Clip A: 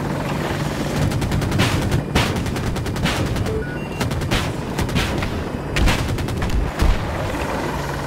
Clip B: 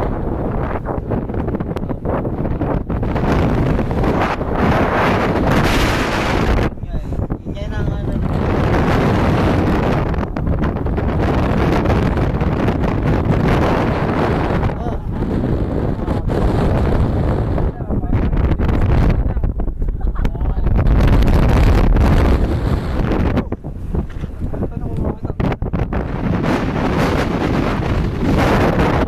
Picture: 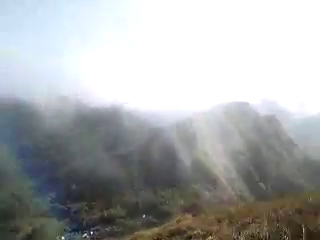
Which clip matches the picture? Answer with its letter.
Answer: B